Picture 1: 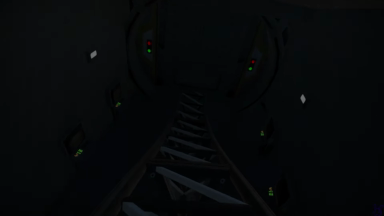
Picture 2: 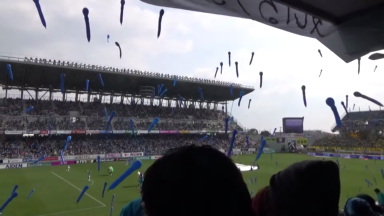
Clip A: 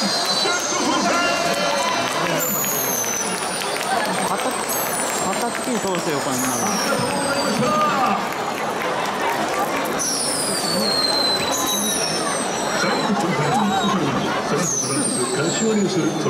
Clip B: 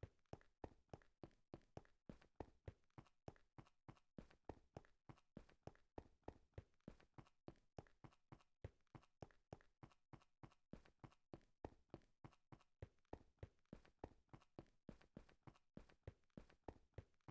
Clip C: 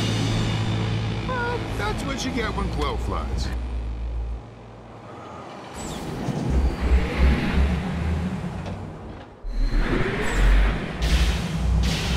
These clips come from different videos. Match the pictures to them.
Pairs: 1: C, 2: A